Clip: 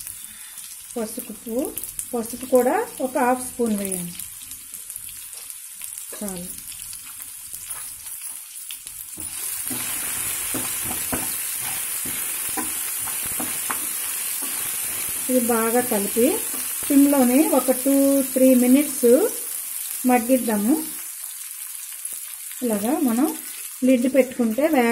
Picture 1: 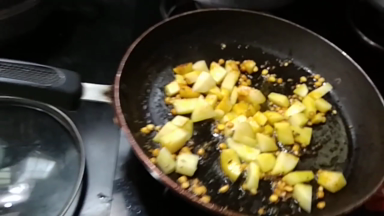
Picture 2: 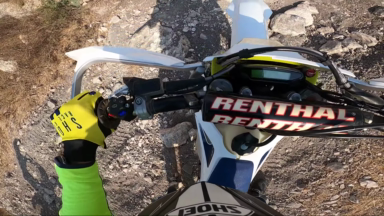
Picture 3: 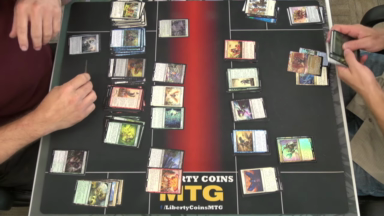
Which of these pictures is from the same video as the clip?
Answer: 1